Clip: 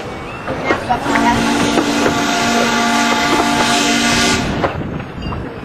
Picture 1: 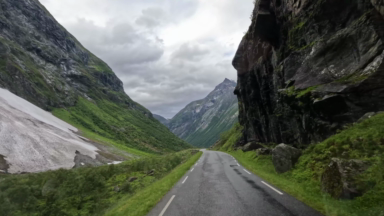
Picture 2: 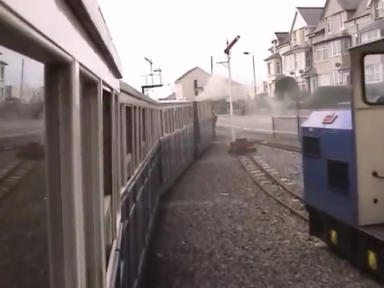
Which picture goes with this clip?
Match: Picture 2